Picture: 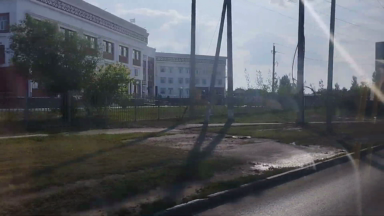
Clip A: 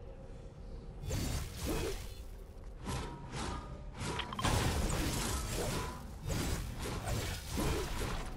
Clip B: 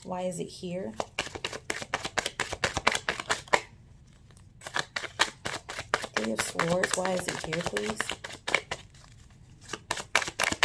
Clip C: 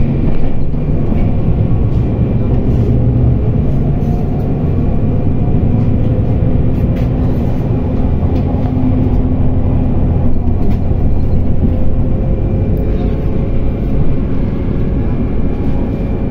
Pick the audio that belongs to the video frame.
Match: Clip C